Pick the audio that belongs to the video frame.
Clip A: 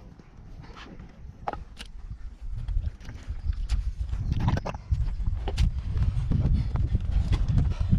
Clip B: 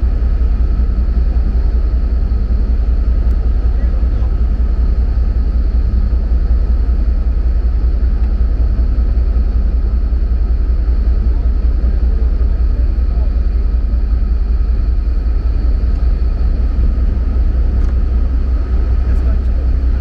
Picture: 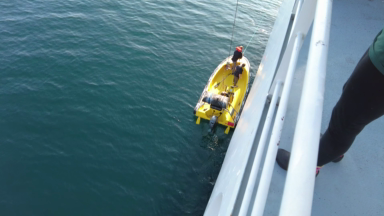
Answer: B